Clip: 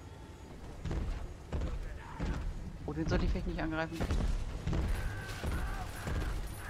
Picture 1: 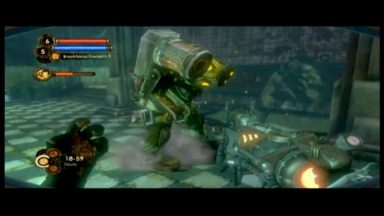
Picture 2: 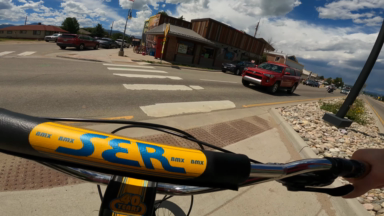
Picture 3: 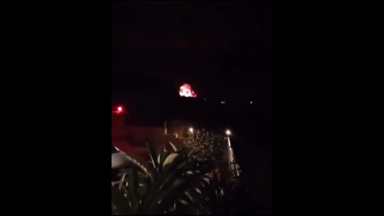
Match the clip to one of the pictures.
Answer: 1